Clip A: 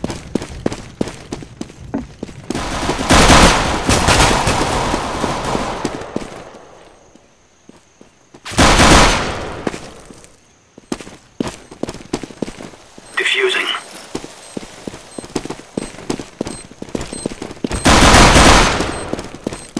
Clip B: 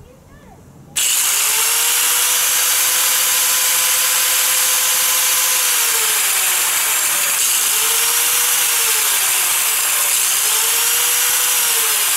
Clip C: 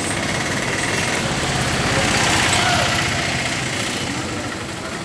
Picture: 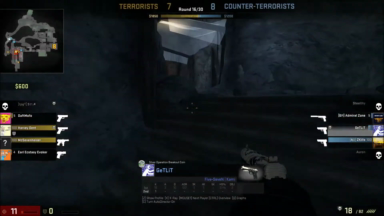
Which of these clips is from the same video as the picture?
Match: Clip A